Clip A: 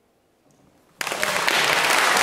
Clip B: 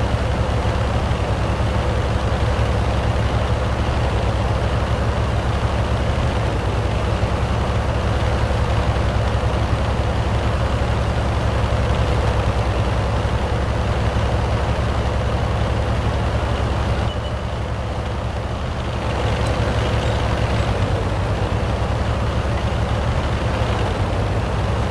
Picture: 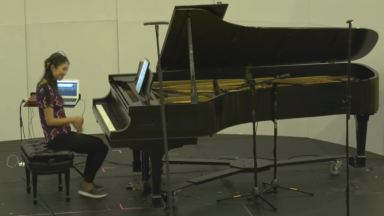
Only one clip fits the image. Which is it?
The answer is A